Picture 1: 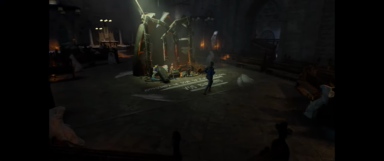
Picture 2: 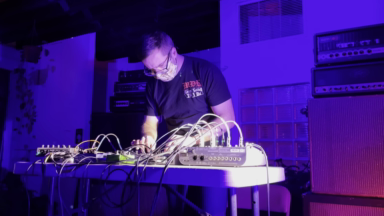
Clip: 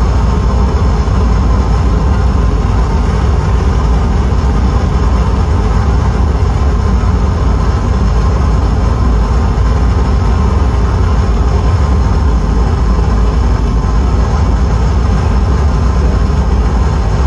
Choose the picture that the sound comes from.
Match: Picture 2